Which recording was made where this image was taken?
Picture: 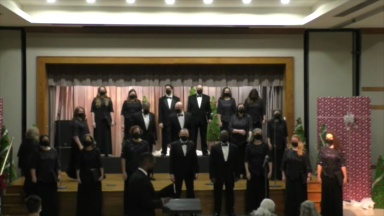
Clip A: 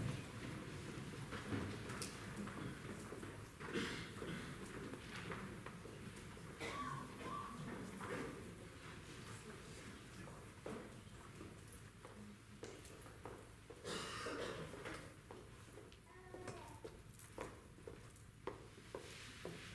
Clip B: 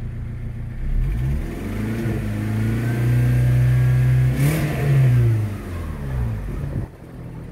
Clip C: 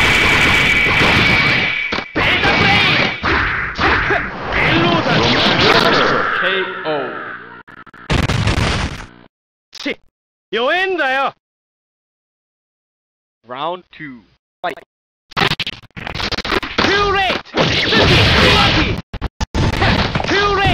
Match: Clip A